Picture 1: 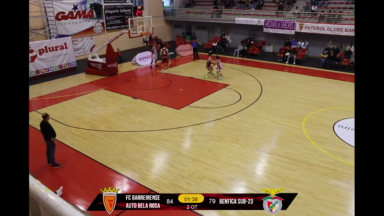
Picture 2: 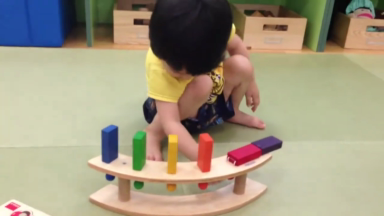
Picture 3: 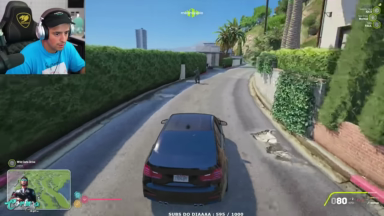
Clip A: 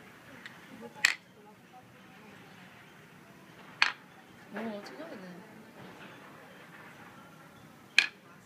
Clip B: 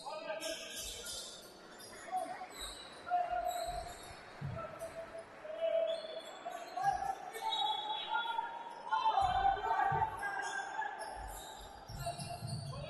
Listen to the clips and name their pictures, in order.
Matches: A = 2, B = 1